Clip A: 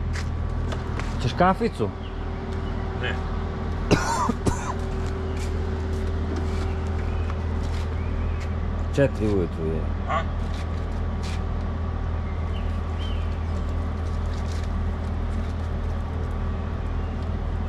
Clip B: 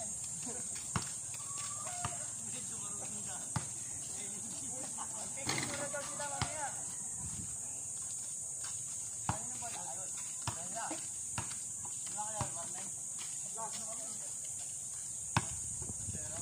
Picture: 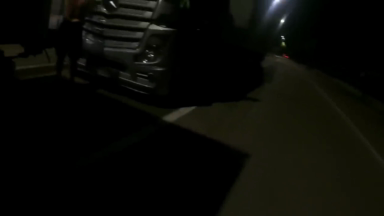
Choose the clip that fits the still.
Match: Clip A